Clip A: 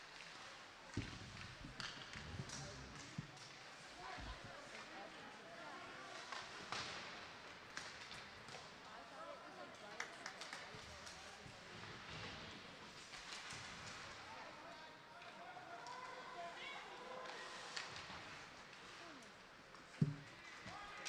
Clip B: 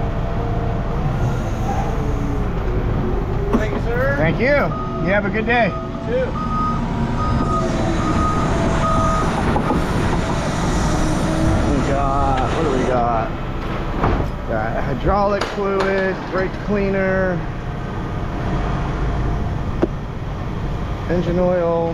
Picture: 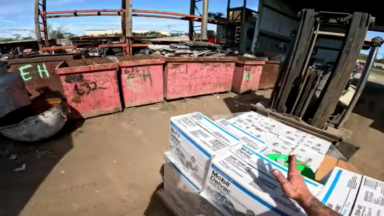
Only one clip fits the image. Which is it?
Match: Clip B